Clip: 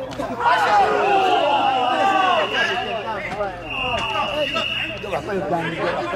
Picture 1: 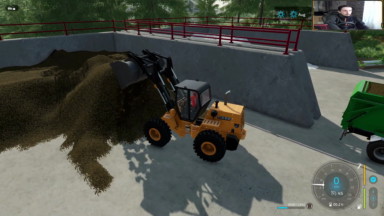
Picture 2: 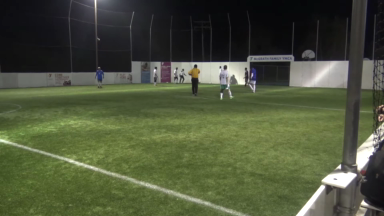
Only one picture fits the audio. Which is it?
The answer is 2